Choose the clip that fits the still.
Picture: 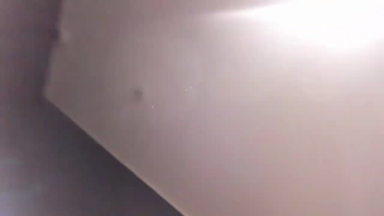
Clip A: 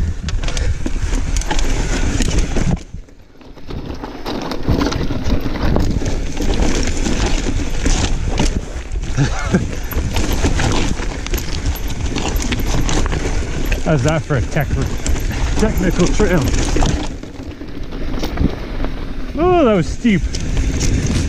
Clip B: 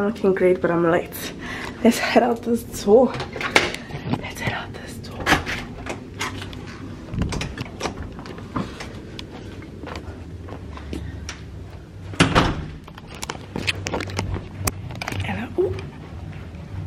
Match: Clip B